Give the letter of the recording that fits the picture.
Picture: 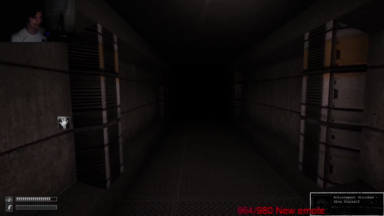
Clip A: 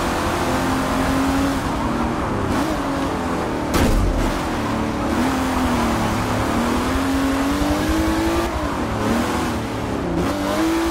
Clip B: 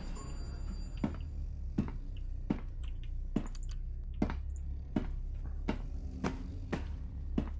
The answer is B